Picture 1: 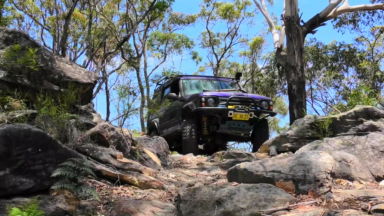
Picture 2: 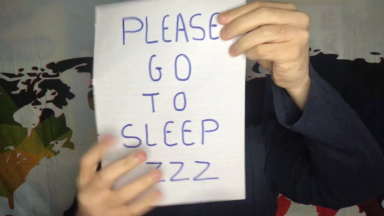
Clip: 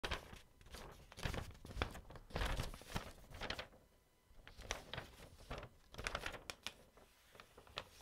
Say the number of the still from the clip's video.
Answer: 2